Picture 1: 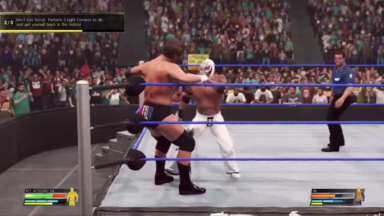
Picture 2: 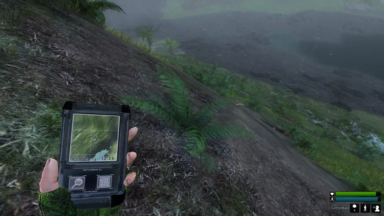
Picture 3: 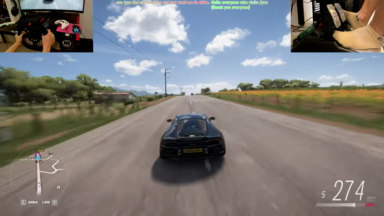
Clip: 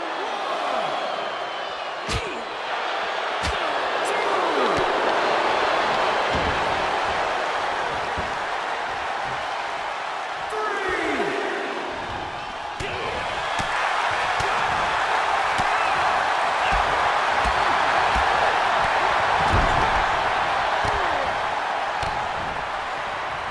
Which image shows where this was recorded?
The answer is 1